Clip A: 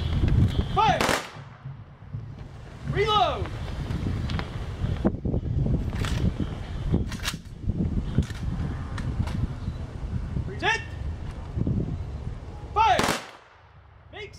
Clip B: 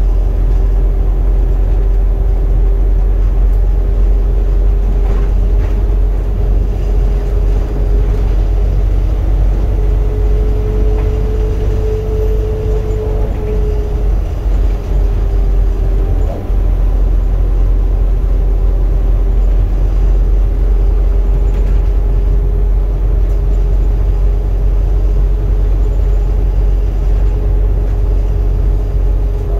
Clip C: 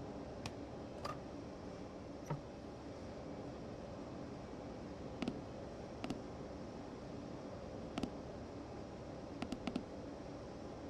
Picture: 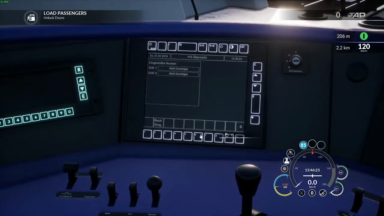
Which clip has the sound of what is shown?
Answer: C